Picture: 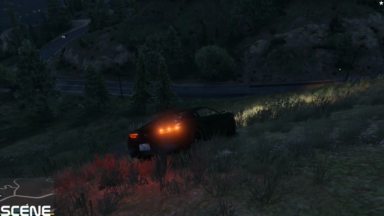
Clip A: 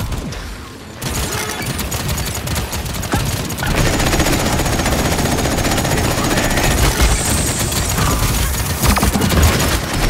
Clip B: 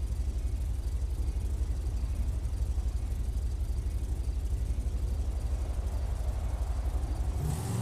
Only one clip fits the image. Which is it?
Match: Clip B